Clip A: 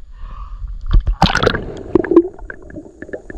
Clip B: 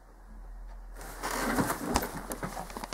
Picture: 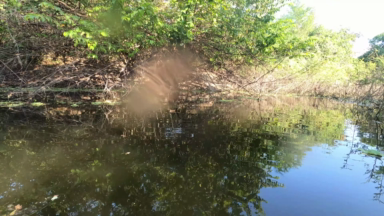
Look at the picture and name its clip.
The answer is A